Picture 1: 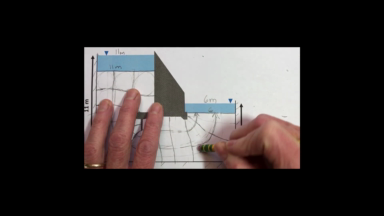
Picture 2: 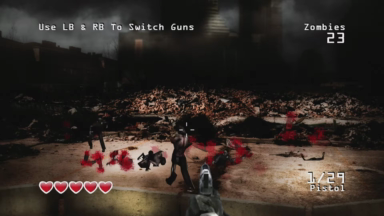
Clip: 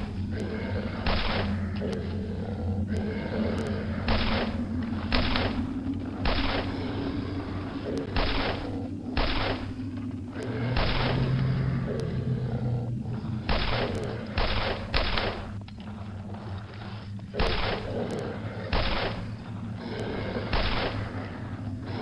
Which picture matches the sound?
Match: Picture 2